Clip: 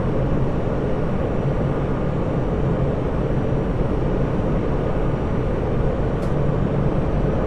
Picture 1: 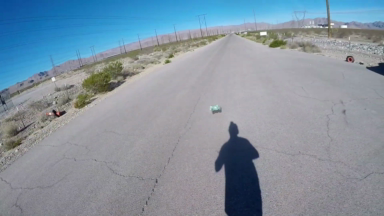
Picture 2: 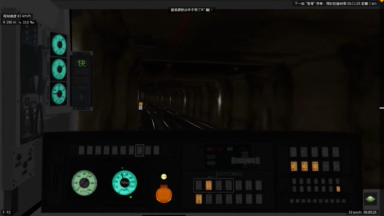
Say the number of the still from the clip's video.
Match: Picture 2